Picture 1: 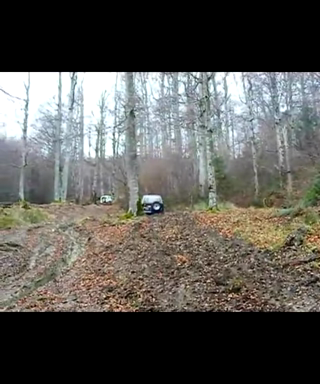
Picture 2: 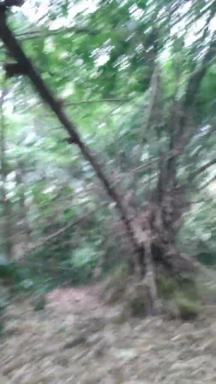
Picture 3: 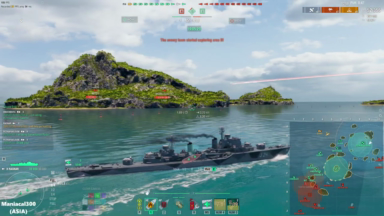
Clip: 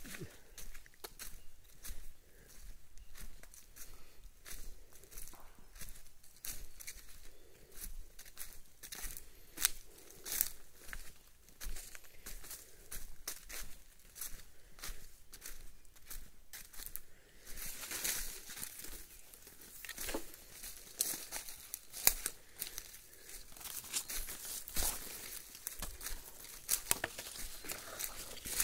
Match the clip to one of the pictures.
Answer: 2